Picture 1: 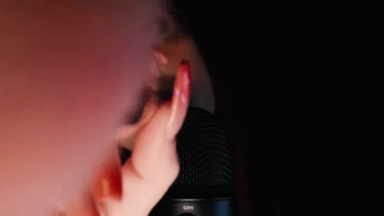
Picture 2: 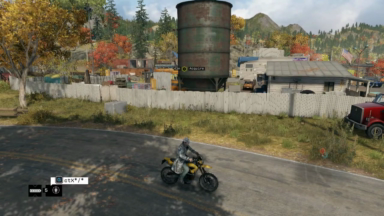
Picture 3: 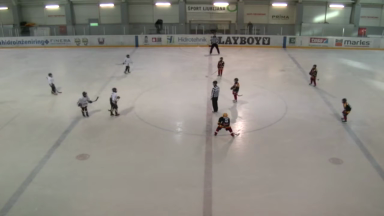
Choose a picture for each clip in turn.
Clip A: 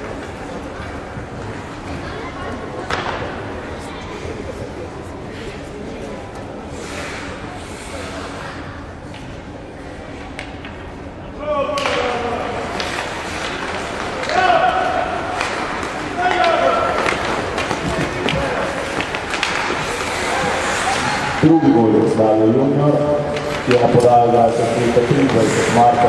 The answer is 3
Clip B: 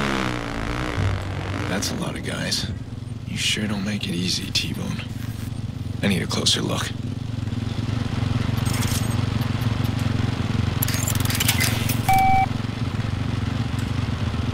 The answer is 2